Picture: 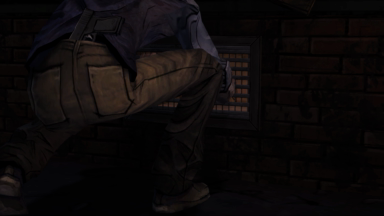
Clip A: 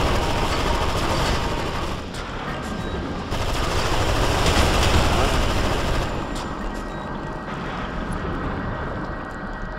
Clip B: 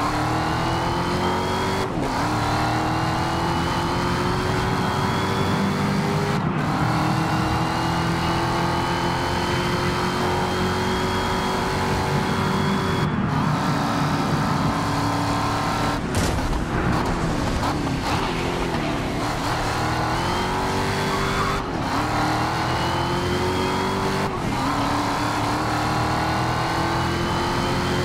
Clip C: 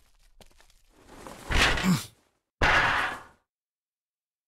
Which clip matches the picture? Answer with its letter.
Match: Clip C